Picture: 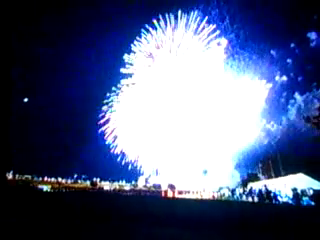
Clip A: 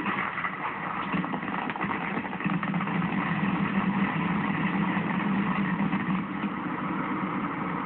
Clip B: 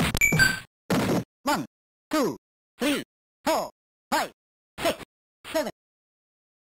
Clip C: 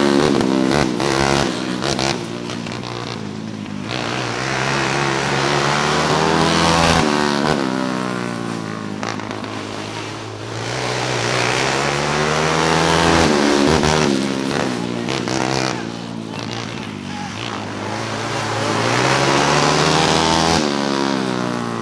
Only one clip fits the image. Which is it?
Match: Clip A